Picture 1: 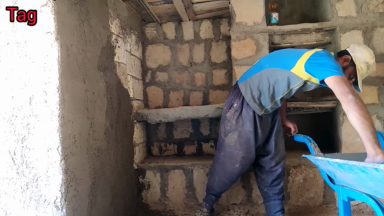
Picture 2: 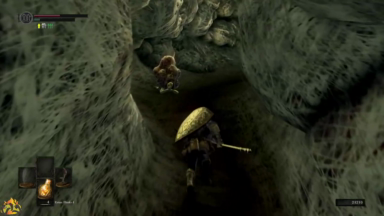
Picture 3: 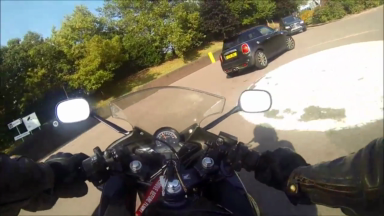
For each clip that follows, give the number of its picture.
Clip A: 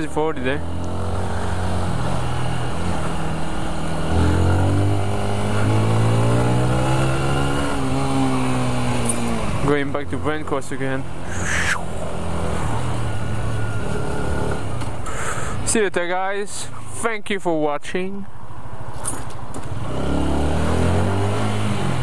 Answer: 3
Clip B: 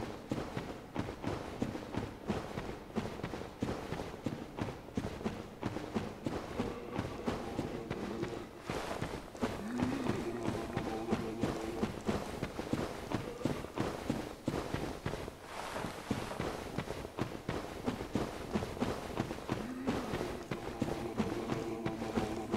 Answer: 2